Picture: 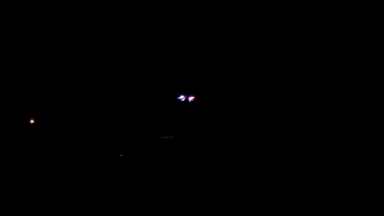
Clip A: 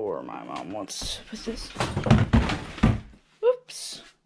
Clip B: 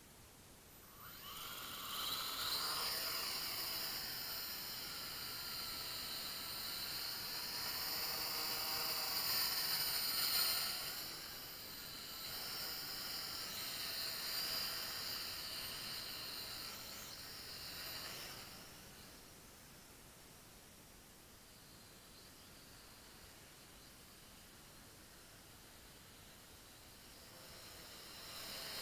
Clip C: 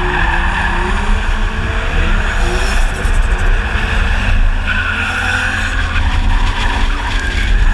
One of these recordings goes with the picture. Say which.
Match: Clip B